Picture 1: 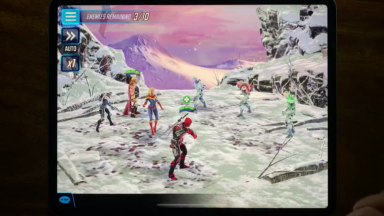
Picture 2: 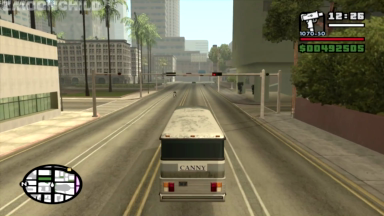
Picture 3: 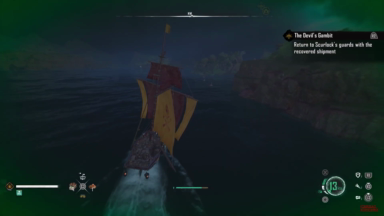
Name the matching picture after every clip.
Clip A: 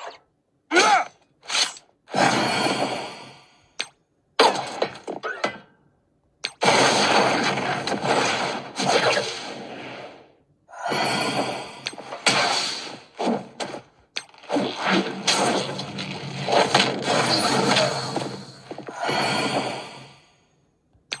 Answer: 1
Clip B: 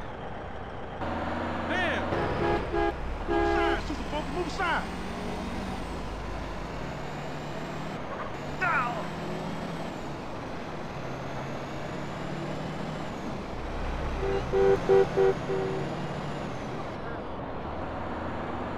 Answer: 2